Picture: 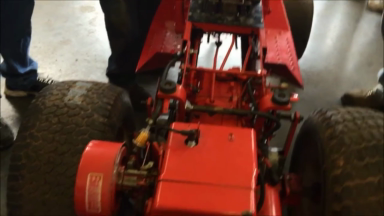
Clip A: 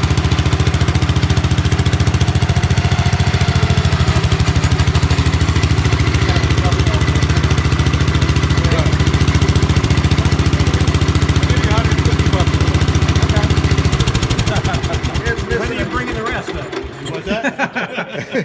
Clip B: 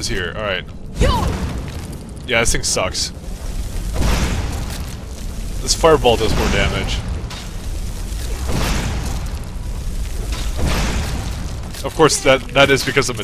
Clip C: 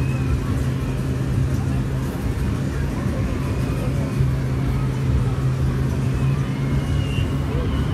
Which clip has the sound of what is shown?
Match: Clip A